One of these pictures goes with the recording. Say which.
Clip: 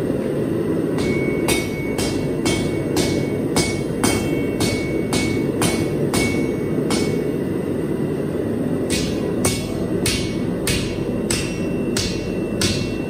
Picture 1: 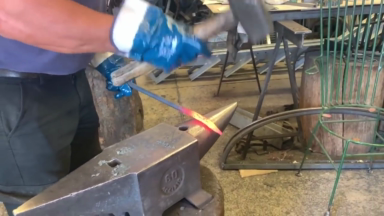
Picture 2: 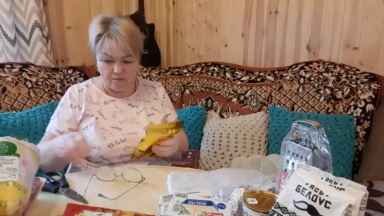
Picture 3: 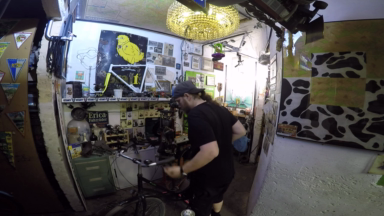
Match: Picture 1